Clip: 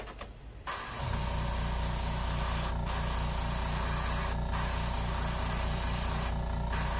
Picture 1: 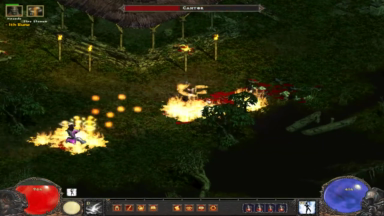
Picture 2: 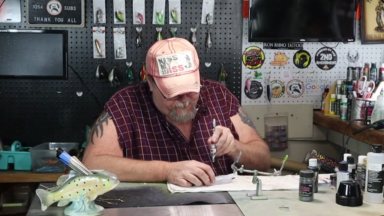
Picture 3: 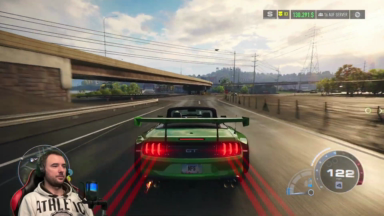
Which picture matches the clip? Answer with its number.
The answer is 2